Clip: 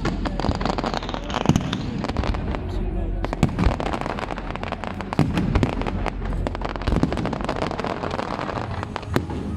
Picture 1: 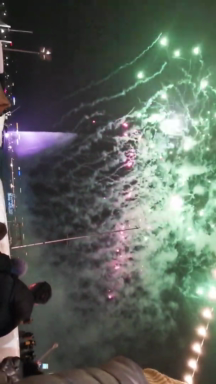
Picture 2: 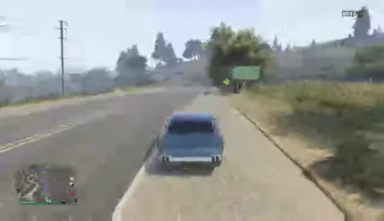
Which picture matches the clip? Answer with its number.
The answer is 1